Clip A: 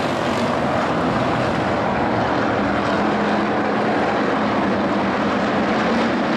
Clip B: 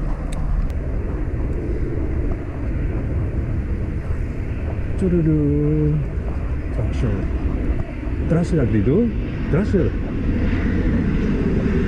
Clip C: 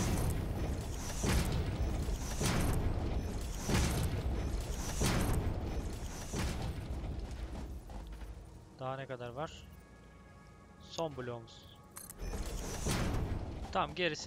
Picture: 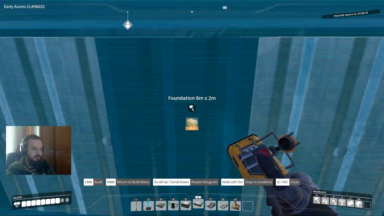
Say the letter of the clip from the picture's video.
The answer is C